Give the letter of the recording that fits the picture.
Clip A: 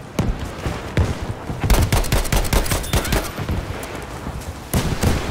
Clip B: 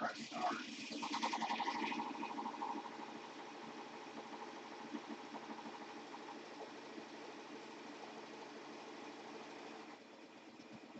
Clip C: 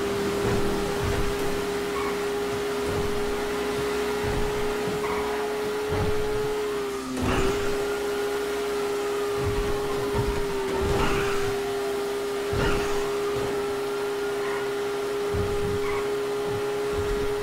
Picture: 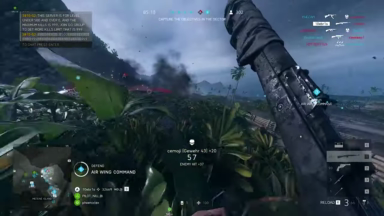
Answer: A